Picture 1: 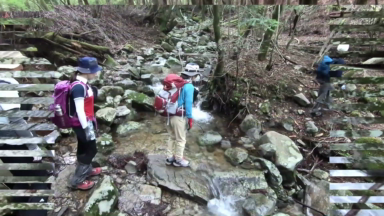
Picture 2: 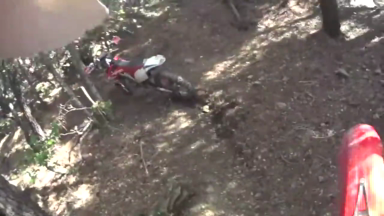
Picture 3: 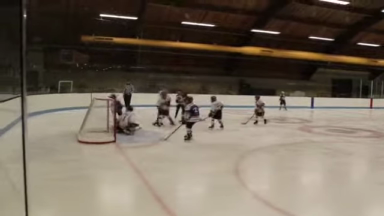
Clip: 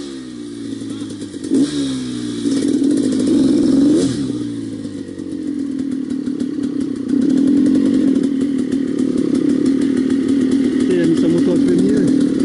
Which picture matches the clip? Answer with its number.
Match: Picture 2